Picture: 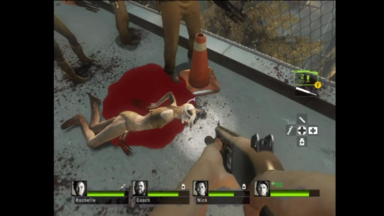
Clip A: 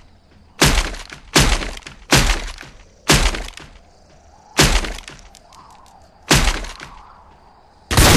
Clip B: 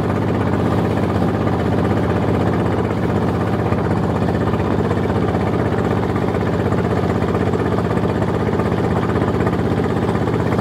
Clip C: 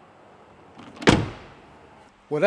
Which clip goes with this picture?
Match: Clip A